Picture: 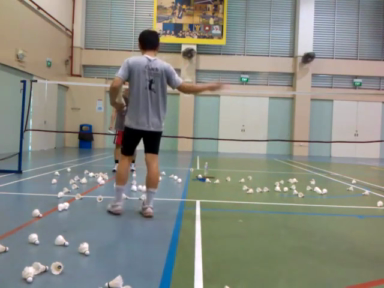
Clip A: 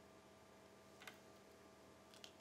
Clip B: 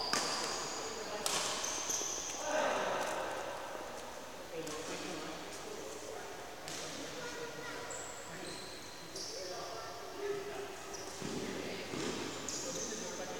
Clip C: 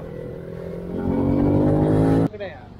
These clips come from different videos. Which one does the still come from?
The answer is B